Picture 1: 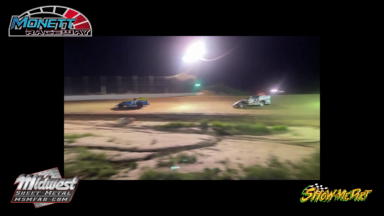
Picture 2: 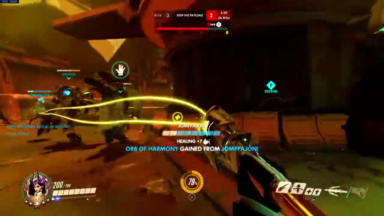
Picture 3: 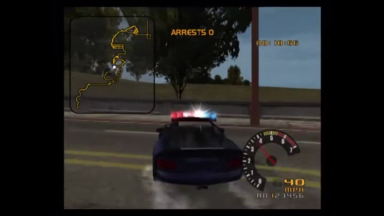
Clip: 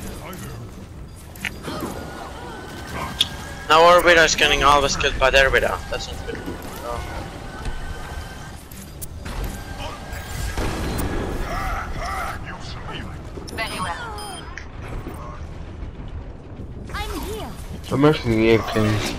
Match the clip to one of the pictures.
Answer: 2